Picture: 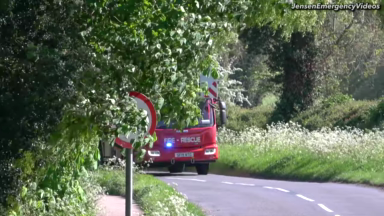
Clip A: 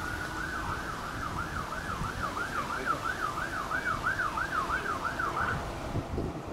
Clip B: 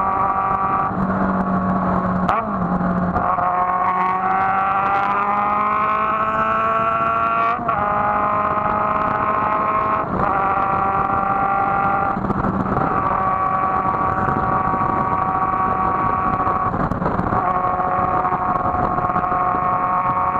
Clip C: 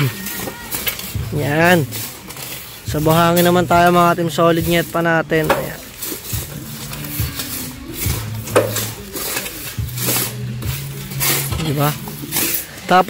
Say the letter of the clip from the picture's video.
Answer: A